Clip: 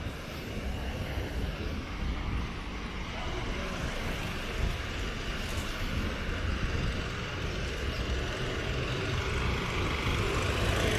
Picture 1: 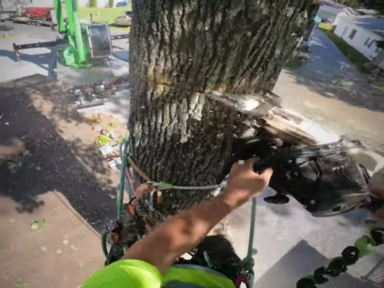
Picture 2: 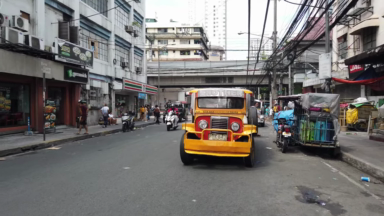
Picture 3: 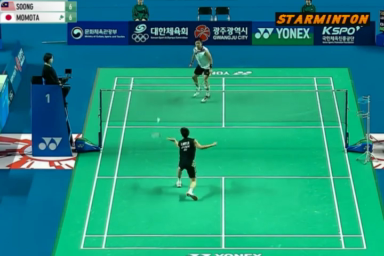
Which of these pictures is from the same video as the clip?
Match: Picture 2